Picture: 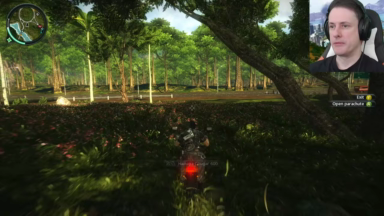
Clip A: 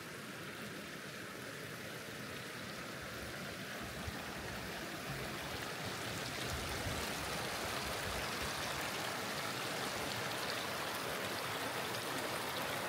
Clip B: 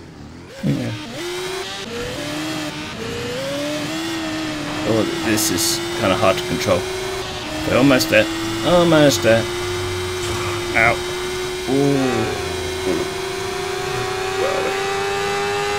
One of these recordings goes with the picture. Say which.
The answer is B